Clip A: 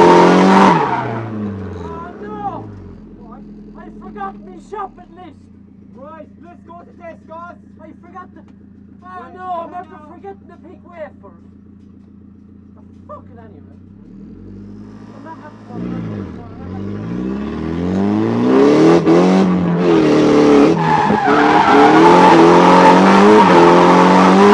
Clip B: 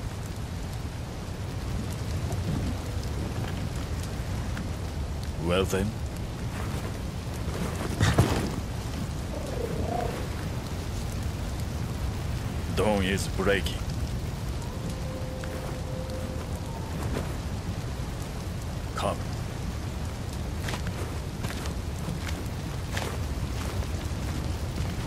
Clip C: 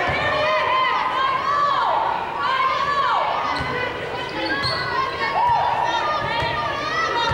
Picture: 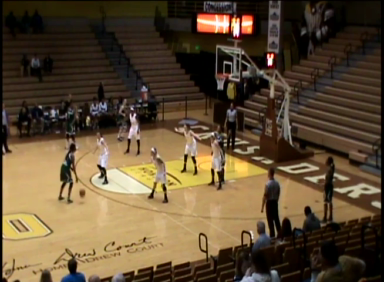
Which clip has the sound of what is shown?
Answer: C